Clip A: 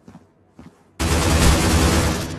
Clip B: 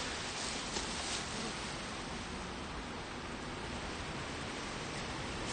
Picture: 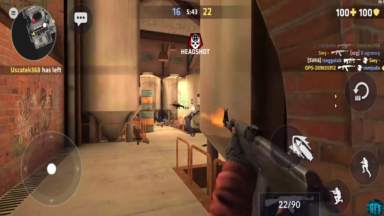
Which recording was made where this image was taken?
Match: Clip A